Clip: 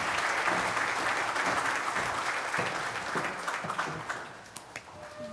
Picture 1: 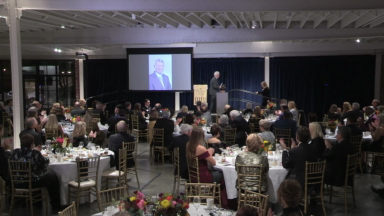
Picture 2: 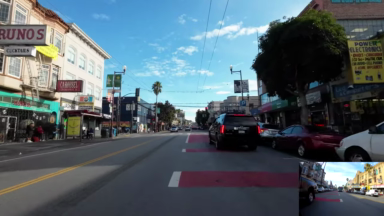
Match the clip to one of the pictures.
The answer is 1